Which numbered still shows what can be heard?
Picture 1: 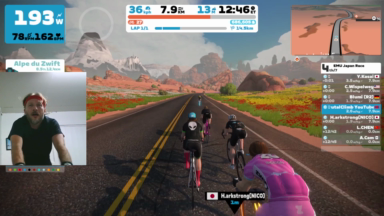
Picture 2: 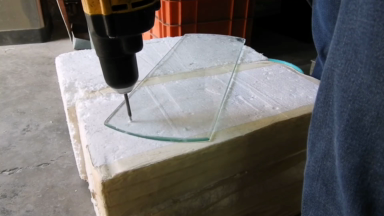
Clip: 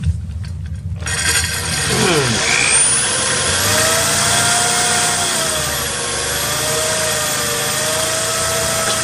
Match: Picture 2